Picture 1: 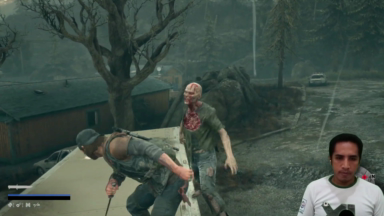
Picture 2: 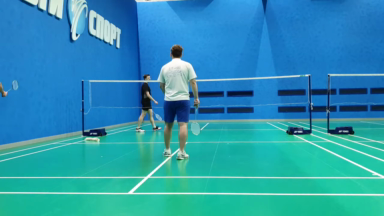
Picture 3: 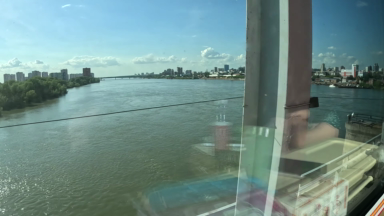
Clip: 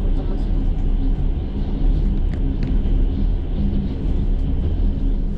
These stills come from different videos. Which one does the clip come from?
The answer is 3